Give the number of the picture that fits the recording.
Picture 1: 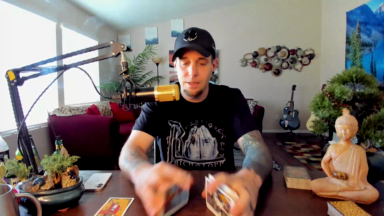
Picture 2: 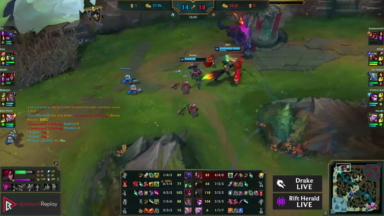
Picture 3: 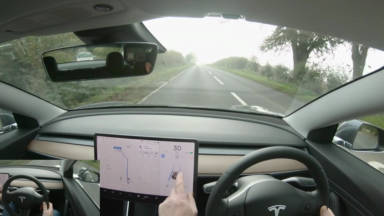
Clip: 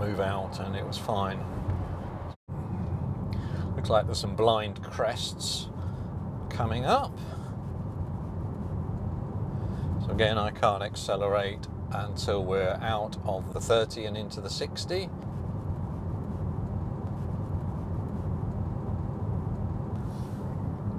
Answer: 3